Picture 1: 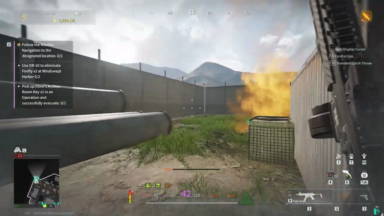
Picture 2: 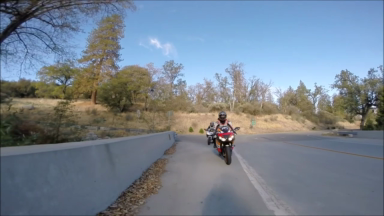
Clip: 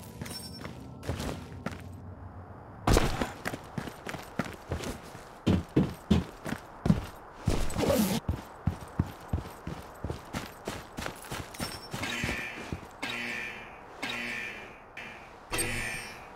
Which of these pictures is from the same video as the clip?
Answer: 1